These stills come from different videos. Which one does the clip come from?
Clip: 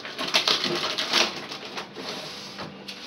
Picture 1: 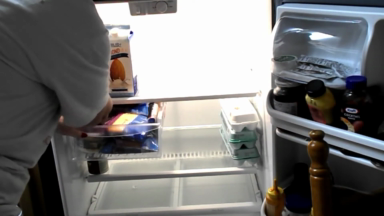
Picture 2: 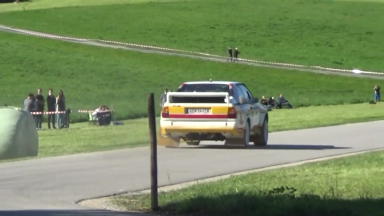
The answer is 1